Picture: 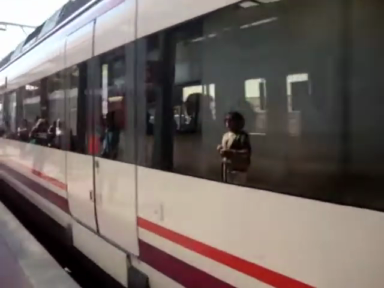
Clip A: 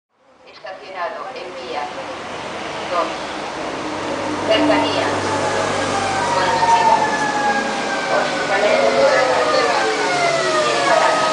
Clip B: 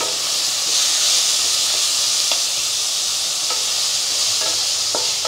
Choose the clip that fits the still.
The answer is A